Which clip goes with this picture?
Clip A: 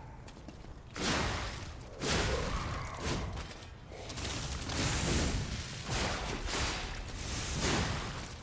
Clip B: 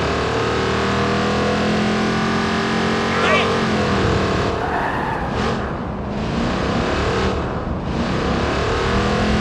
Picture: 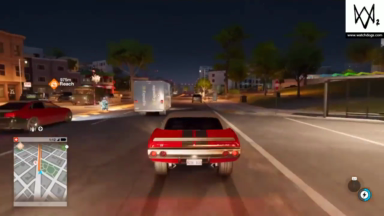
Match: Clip B